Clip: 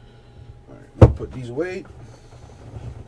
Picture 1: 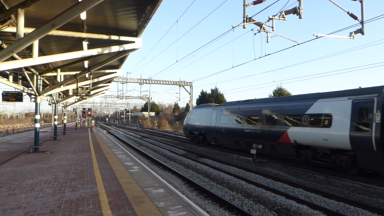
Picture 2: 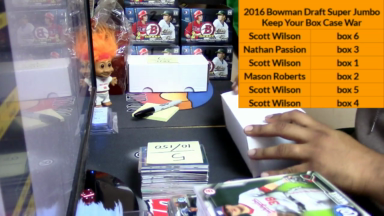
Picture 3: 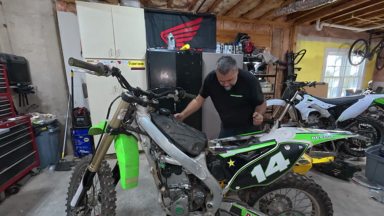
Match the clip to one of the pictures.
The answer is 2